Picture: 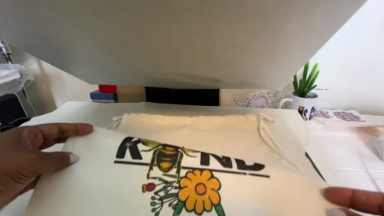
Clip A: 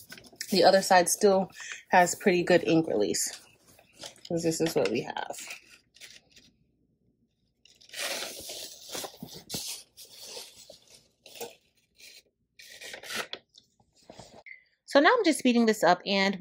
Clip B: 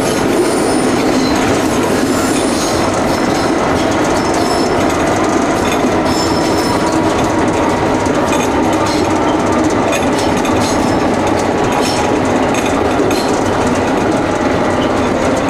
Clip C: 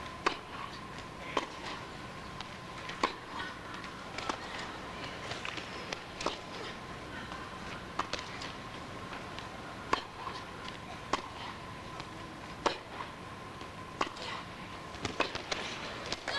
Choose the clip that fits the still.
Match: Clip A